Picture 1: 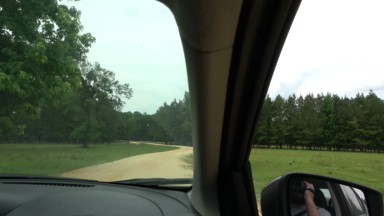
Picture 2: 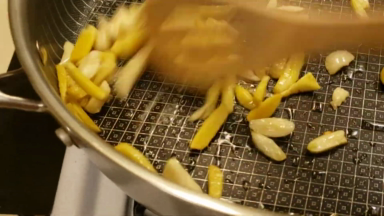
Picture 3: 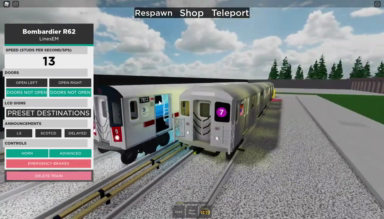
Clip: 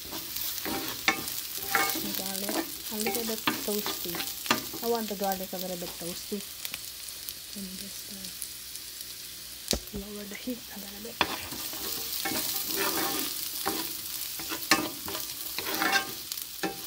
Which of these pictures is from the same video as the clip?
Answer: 2